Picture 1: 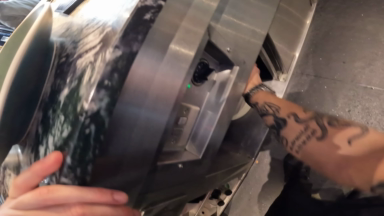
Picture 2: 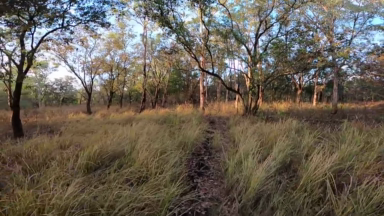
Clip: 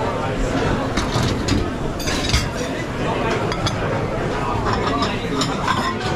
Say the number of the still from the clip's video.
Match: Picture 1